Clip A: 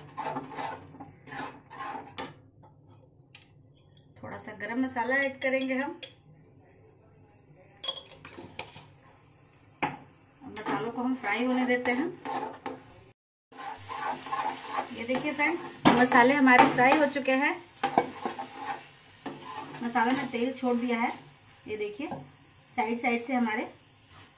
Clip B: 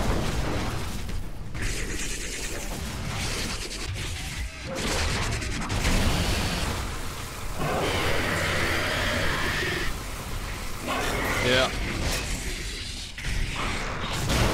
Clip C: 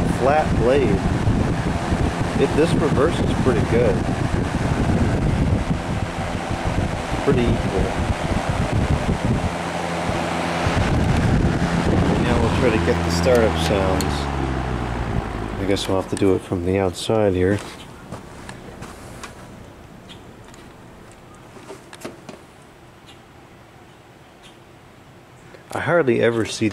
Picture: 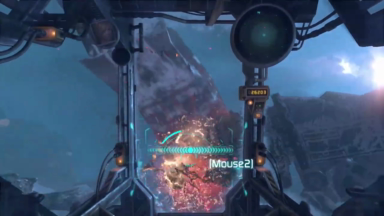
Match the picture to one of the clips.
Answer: B